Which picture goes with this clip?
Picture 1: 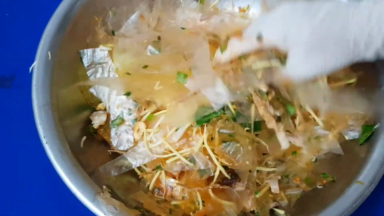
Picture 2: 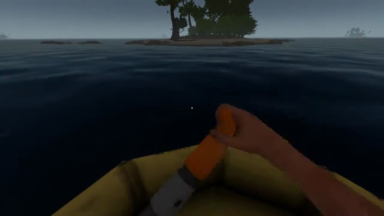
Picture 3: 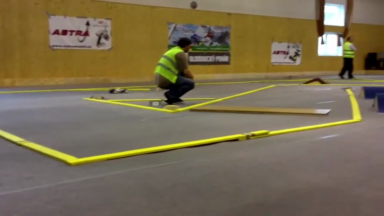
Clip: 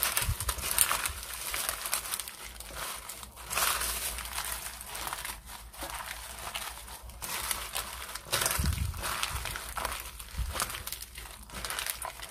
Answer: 1